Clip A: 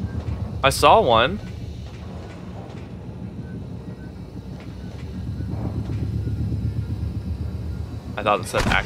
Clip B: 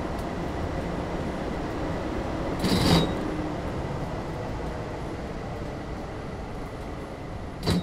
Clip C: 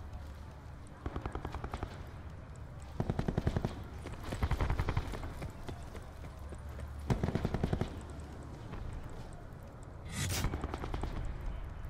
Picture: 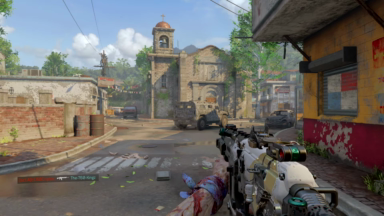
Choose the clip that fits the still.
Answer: C